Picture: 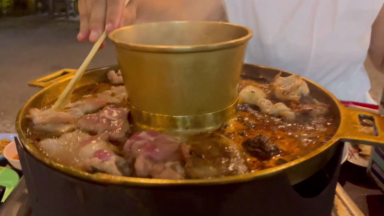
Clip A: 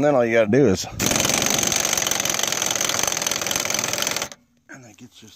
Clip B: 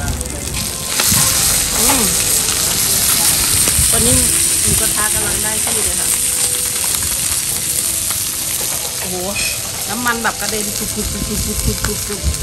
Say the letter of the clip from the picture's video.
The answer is B